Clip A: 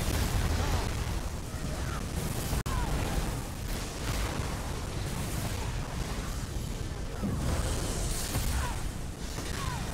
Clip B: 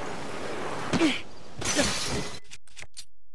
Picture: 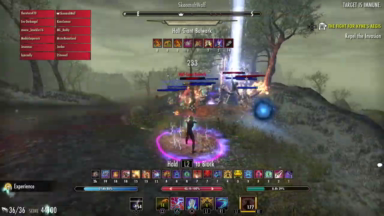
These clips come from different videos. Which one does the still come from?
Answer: A